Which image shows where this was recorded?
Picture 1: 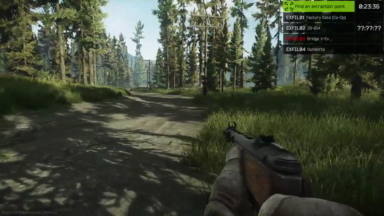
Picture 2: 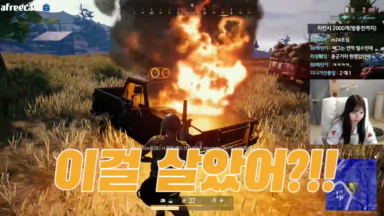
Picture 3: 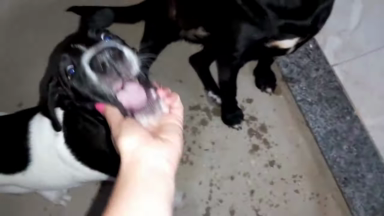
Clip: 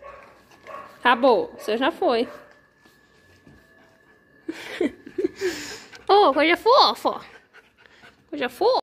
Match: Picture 3